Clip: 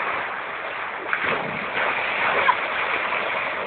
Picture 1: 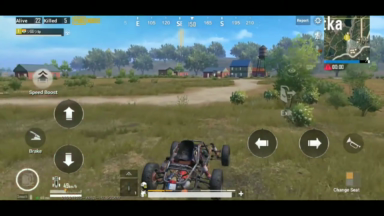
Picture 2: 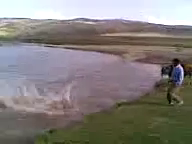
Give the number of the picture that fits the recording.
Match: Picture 2